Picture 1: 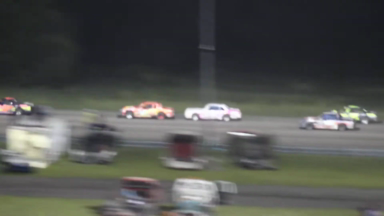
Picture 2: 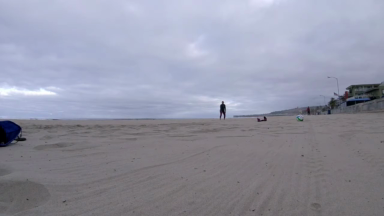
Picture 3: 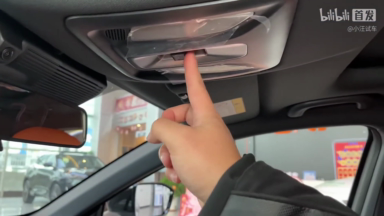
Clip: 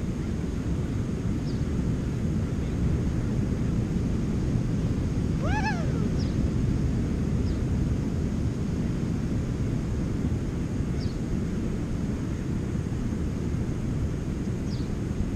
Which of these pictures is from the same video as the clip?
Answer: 2